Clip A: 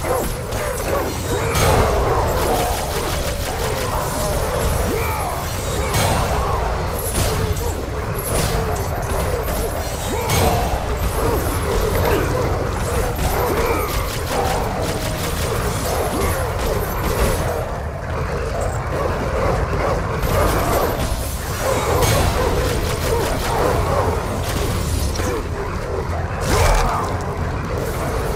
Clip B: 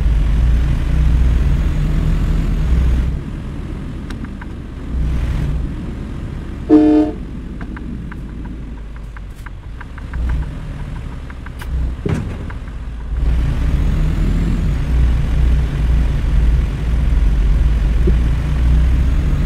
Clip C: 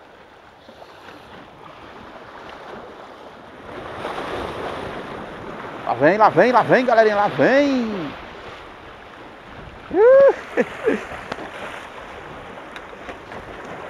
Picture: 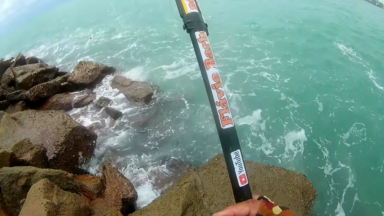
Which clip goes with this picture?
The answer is C